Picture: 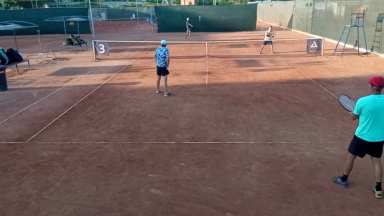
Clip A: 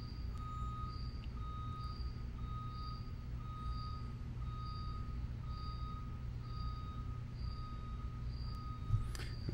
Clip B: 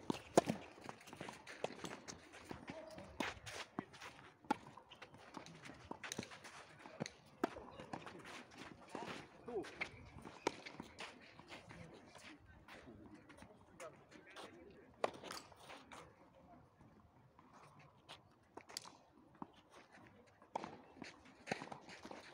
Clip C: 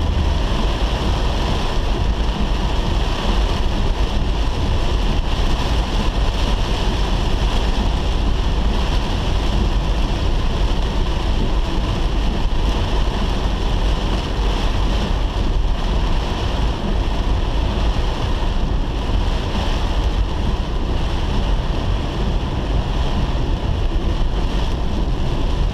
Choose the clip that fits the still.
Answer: B